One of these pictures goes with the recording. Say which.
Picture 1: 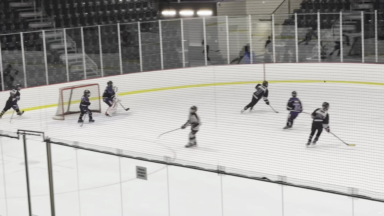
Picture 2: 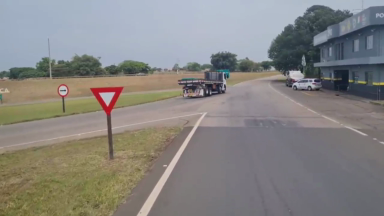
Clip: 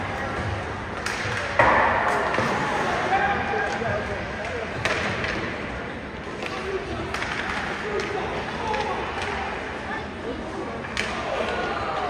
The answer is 1